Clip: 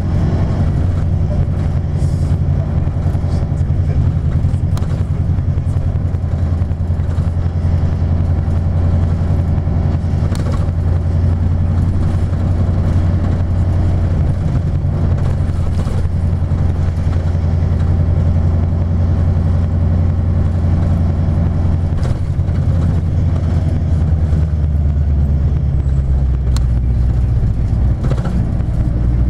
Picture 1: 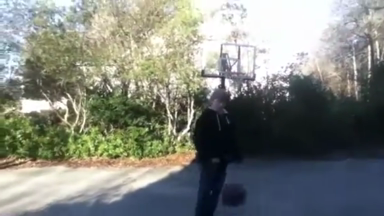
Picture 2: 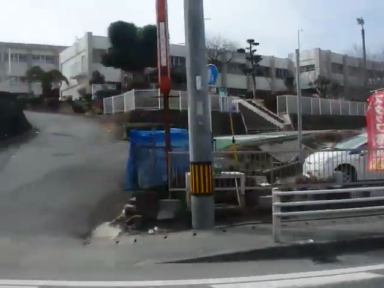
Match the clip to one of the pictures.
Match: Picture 2